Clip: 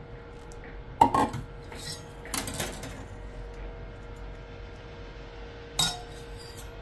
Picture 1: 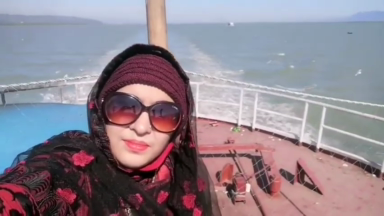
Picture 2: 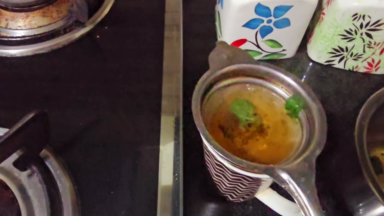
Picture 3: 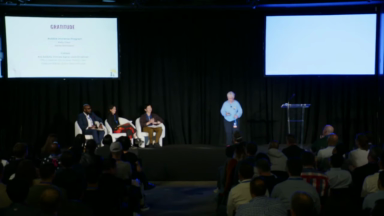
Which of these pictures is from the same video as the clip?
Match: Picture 2